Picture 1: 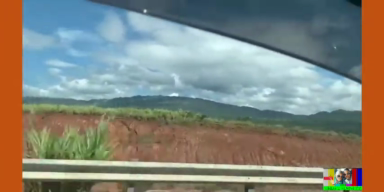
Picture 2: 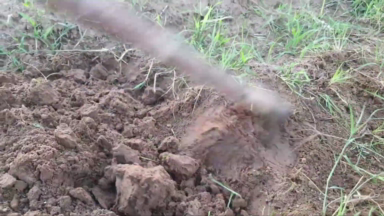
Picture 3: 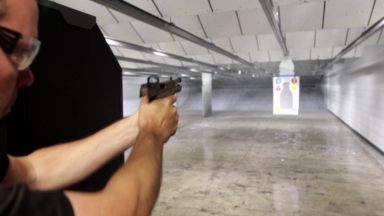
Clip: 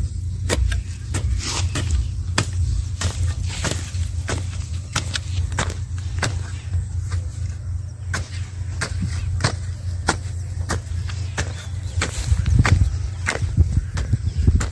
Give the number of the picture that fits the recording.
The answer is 2